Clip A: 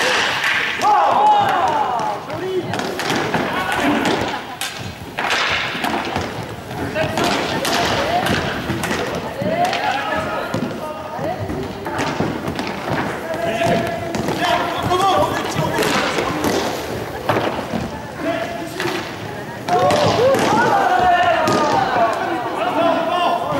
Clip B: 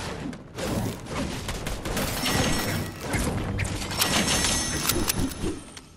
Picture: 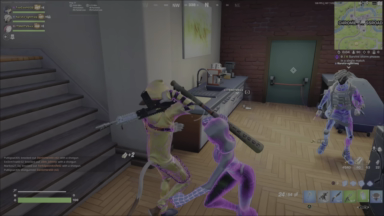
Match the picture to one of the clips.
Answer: B